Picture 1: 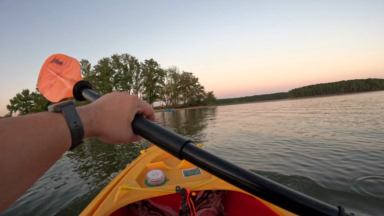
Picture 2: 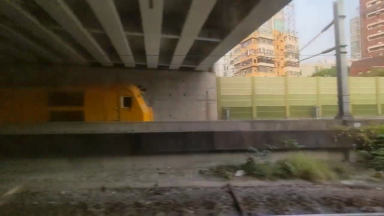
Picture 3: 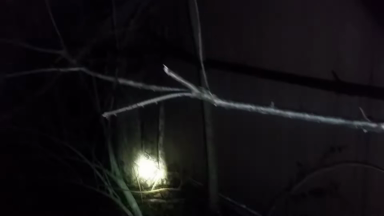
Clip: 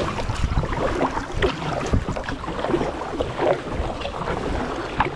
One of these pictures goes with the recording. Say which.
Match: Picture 1